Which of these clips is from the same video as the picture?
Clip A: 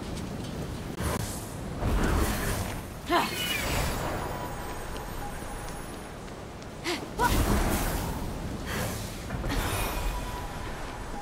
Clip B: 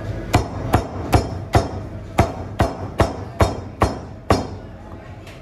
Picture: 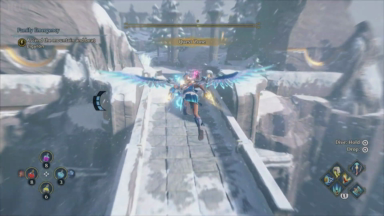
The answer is A